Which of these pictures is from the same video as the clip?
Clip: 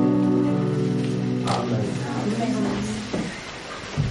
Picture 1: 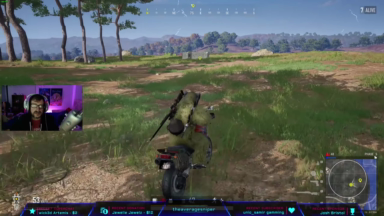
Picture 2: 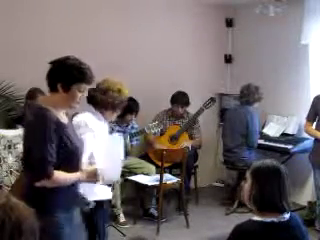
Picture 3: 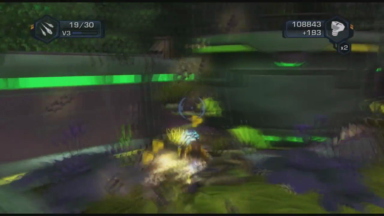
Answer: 2